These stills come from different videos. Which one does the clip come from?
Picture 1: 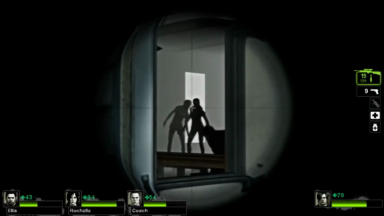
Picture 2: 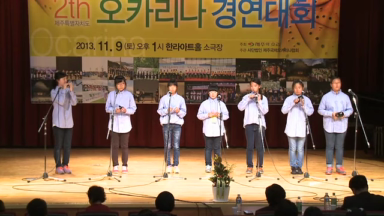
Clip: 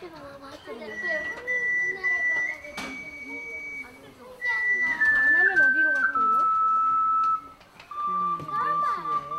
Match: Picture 2